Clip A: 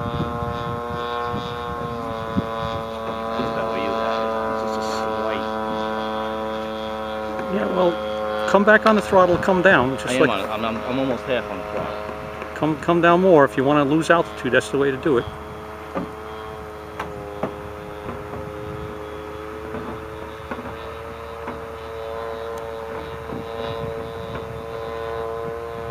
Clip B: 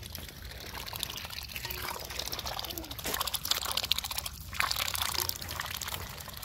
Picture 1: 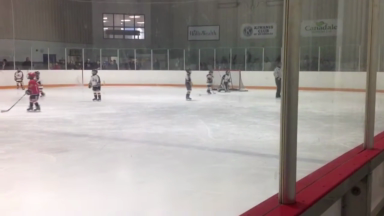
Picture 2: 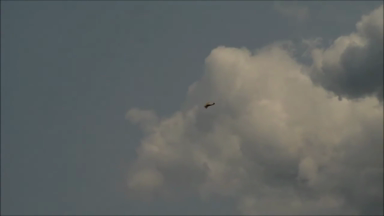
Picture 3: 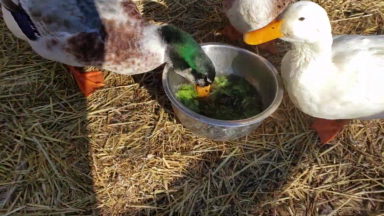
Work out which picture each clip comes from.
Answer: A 2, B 3